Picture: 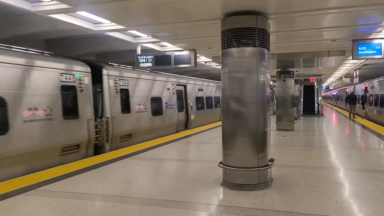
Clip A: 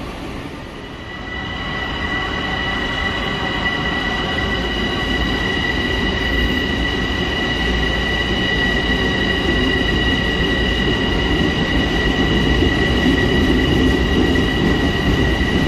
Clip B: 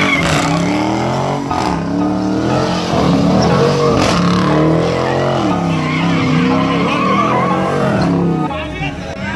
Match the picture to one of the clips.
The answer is A